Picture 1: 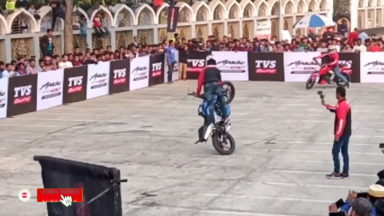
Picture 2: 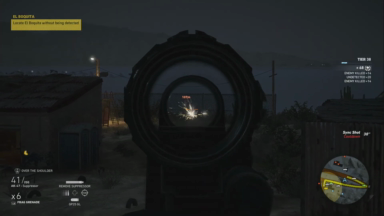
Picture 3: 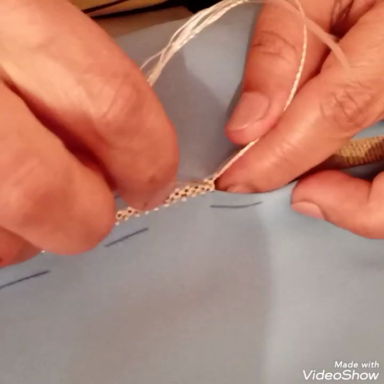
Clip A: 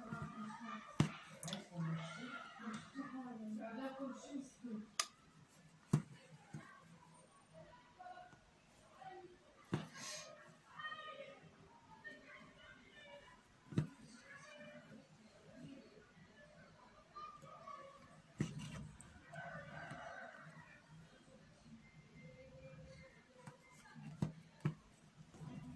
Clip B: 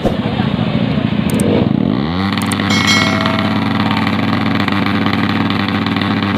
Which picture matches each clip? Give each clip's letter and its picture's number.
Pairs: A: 3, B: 1